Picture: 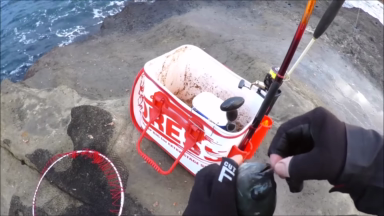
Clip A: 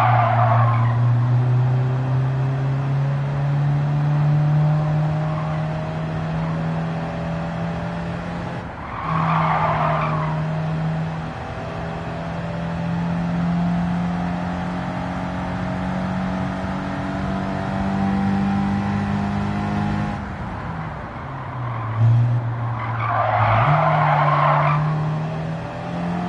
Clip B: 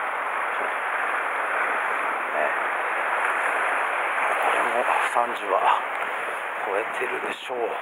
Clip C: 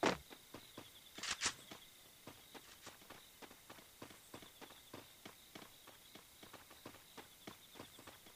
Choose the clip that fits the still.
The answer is B